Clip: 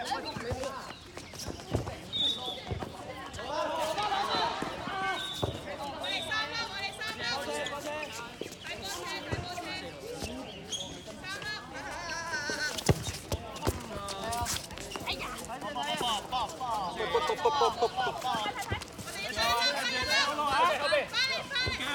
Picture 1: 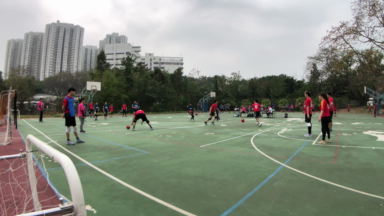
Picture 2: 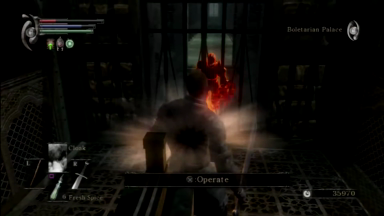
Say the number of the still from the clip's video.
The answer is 1